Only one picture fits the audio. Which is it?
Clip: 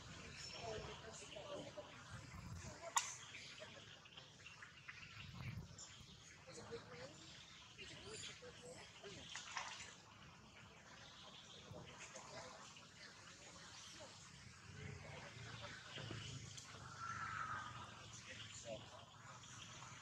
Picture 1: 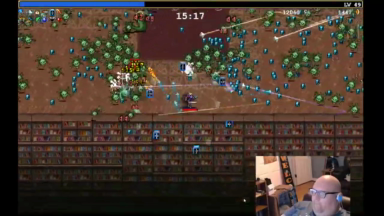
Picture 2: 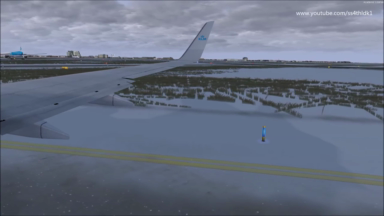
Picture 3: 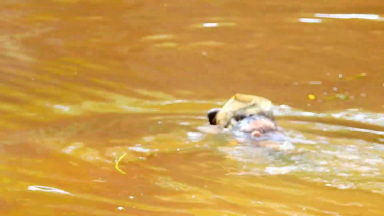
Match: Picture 3